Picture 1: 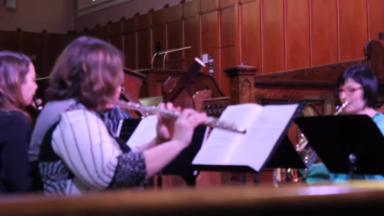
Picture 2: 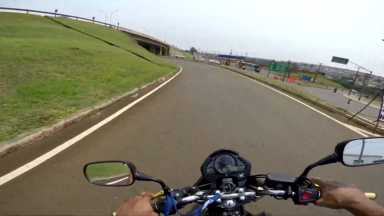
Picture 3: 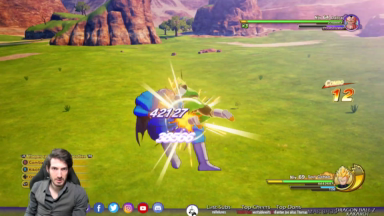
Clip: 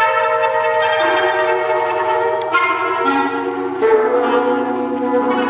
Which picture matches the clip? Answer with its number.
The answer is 1